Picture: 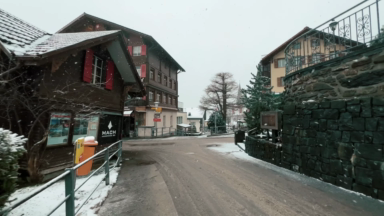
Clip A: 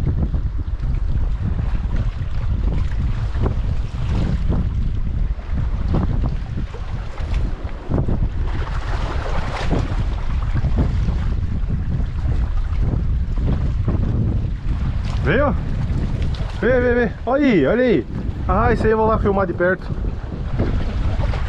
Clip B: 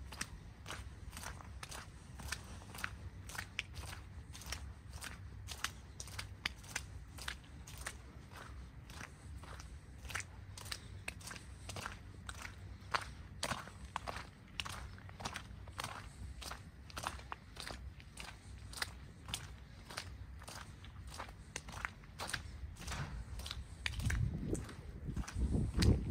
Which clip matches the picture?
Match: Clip B